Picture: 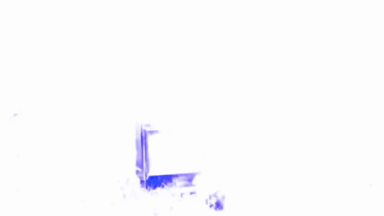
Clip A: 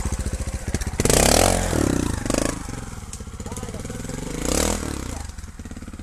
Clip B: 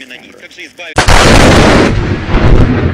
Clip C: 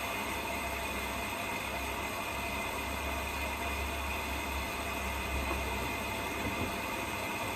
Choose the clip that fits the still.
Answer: B